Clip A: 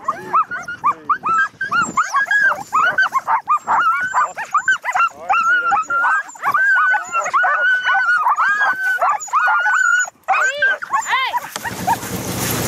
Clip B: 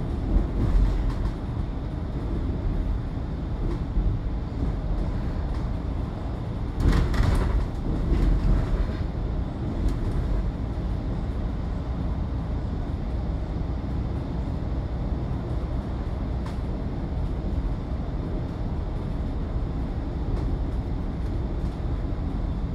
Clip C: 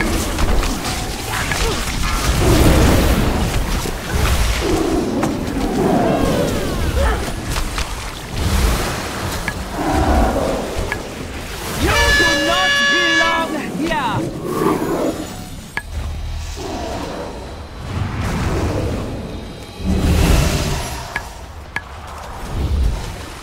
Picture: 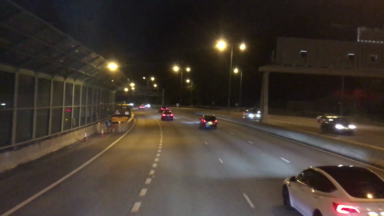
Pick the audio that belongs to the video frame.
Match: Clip B